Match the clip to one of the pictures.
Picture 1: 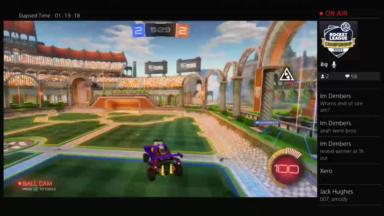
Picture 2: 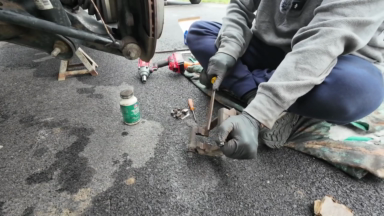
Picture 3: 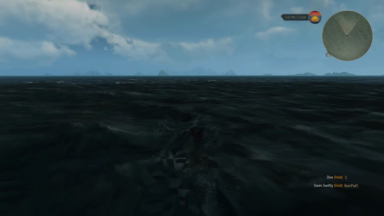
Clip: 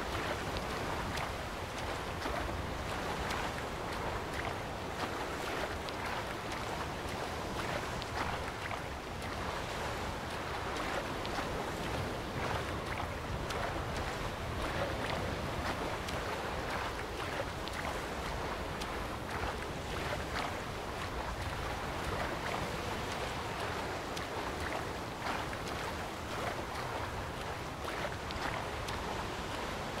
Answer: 3